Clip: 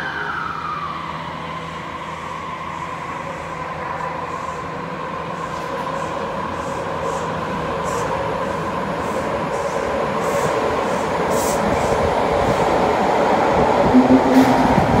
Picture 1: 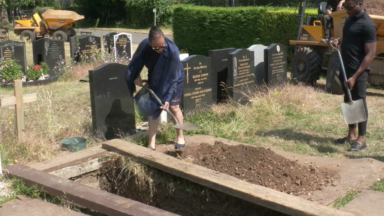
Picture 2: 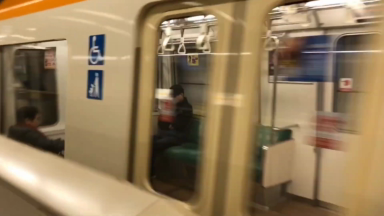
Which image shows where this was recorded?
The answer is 2